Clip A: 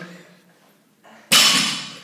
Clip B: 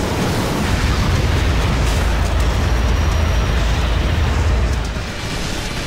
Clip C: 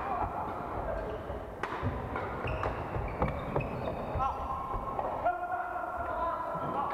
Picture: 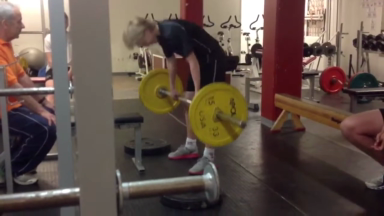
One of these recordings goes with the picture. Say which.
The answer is A